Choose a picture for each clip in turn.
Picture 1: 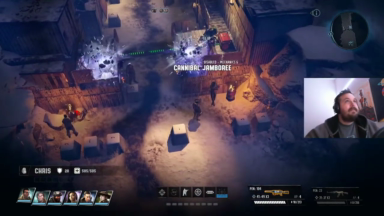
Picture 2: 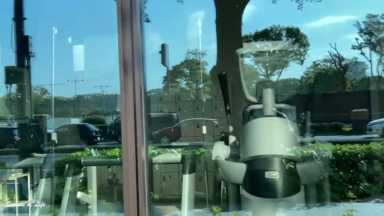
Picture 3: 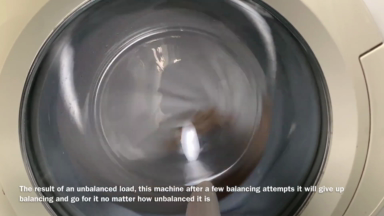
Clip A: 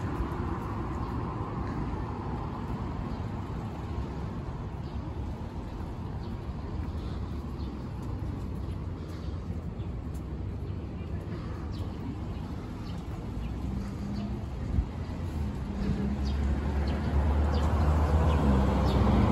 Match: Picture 2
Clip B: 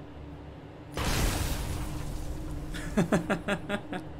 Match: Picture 1